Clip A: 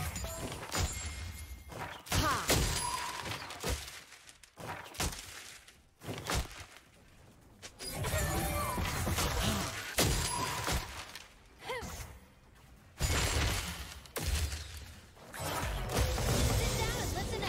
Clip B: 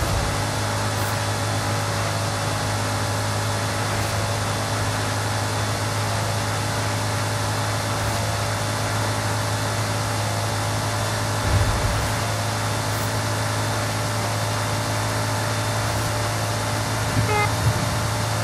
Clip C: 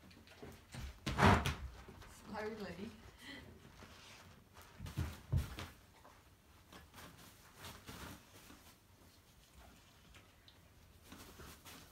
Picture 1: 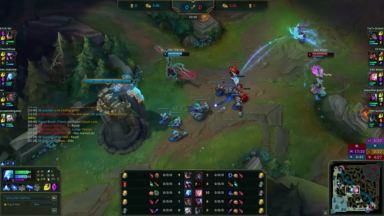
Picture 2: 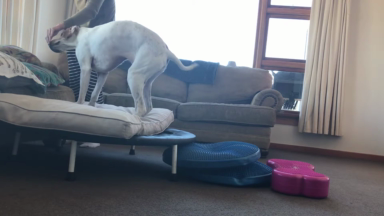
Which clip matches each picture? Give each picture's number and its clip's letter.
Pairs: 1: A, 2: C